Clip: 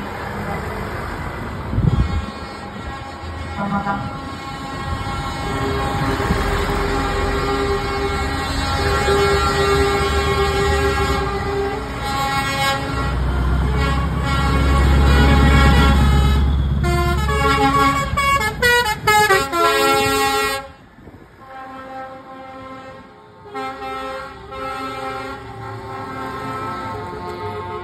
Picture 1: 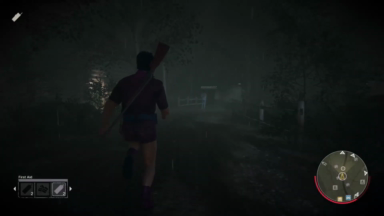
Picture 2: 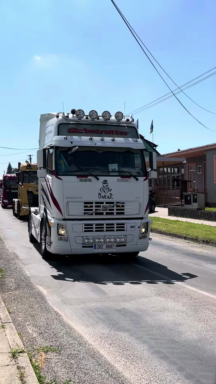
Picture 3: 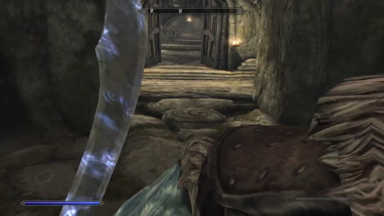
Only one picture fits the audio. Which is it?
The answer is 2